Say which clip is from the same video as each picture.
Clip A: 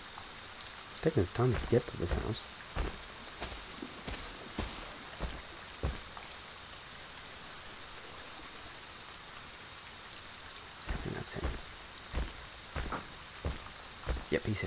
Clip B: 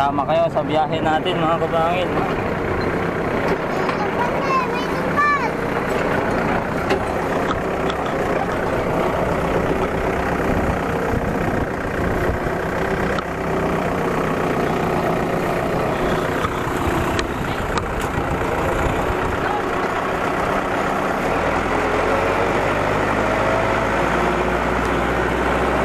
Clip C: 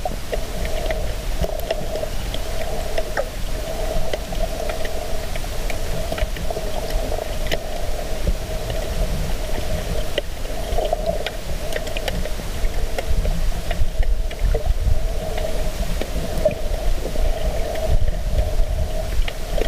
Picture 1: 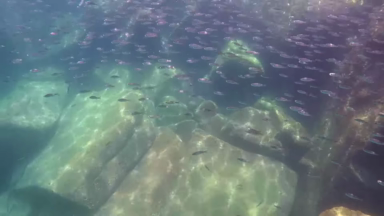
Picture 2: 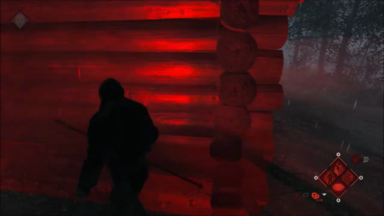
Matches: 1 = C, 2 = A